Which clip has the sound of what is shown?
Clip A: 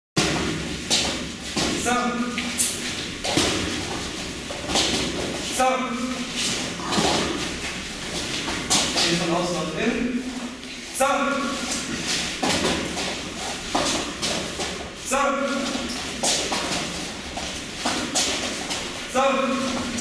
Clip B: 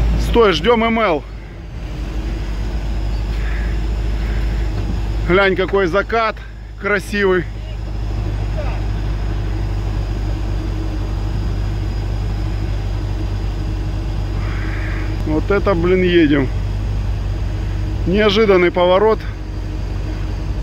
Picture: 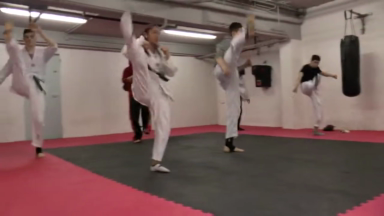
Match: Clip A